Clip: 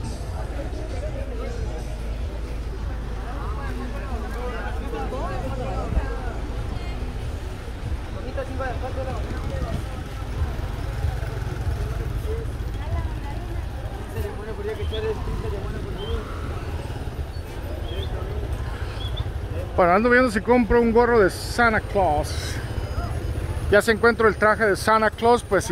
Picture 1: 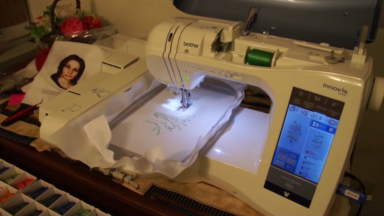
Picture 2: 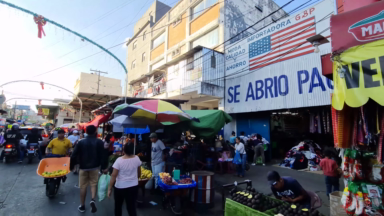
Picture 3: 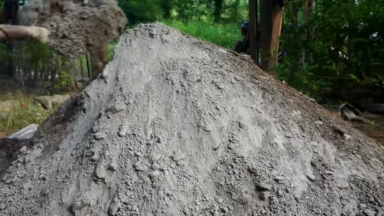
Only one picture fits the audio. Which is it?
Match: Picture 2